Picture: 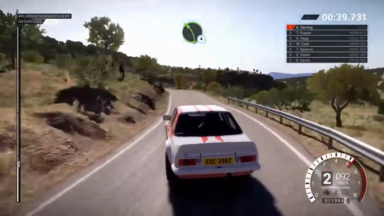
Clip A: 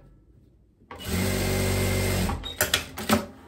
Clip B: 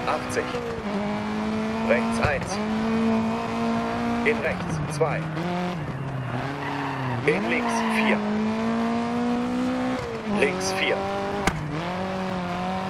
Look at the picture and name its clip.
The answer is B